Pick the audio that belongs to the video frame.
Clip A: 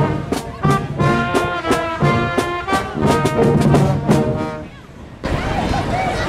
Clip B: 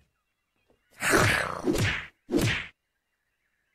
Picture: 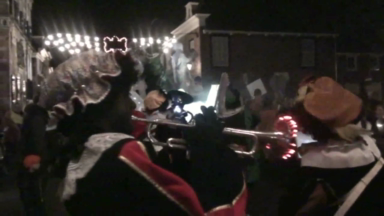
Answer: A